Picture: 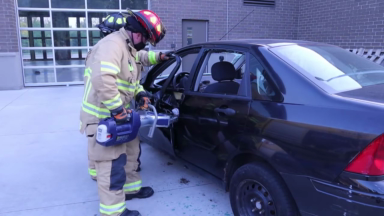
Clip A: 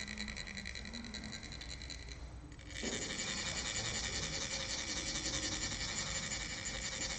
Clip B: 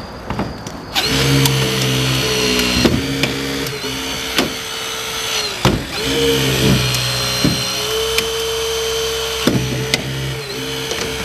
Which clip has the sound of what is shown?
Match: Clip B